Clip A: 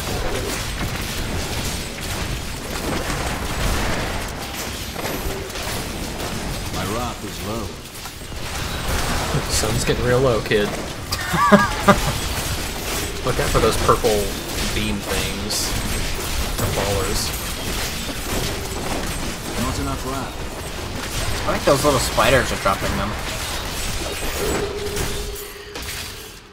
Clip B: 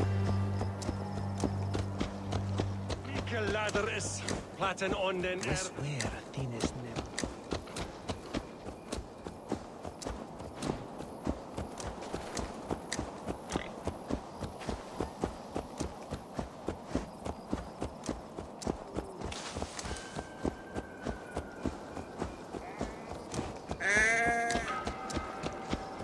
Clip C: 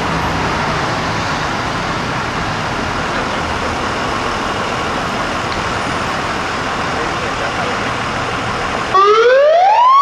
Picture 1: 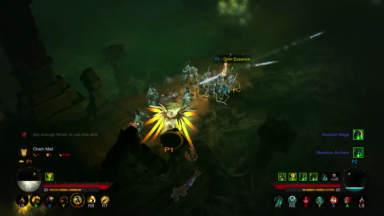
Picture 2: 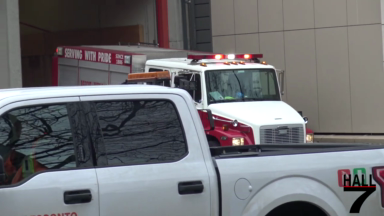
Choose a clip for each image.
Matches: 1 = A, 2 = C